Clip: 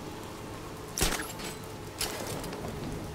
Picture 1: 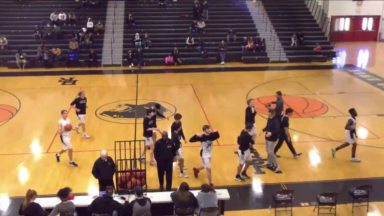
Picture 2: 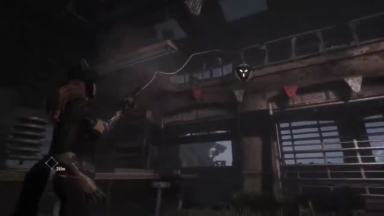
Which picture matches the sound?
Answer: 2